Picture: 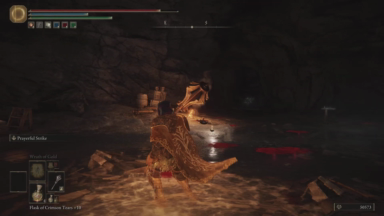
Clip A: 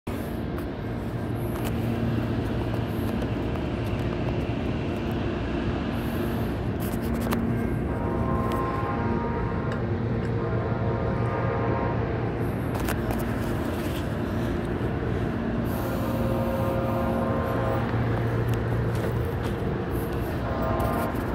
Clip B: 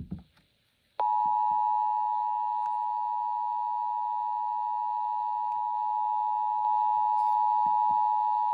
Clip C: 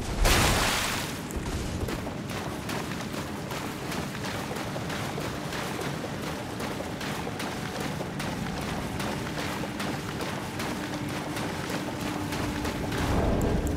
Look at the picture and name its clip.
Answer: C